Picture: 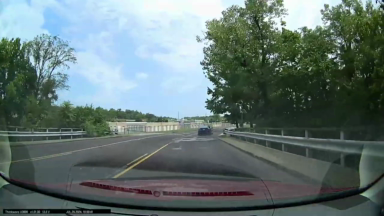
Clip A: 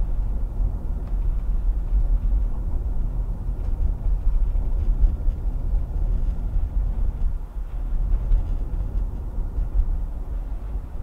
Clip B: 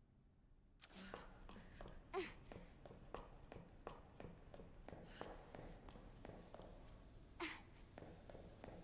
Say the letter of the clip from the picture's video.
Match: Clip A